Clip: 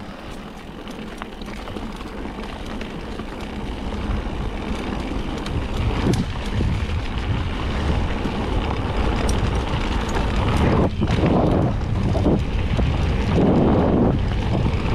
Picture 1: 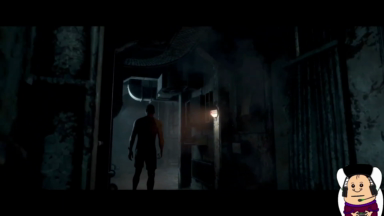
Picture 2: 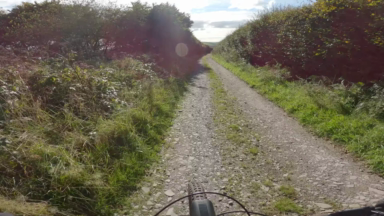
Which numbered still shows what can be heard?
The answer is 2